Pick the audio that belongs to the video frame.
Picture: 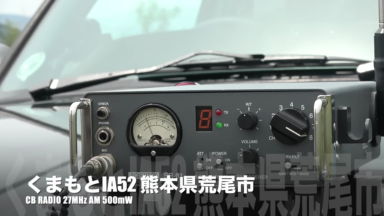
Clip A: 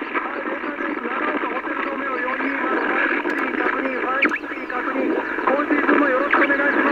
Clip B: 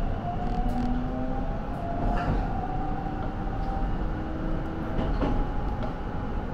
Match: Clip A